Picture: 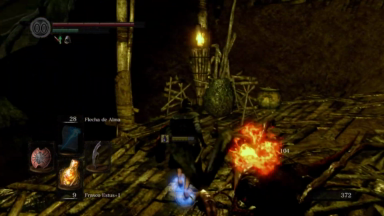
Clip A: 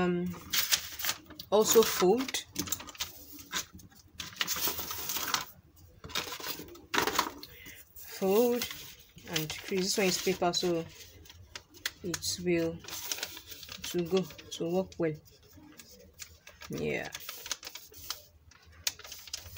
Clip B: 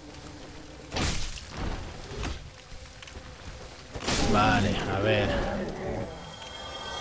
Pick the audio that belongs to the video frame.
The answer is B